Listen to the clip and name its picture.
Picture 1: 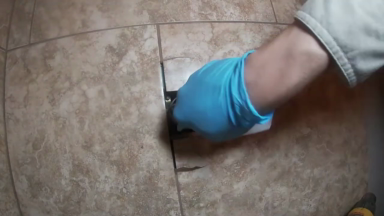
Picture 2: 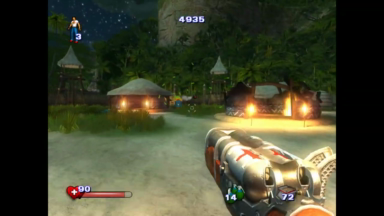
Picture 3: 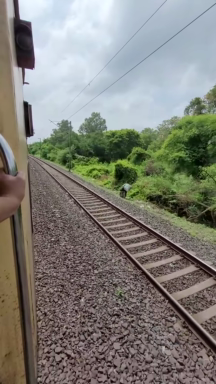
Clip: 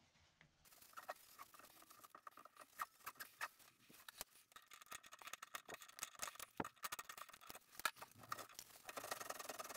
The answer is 1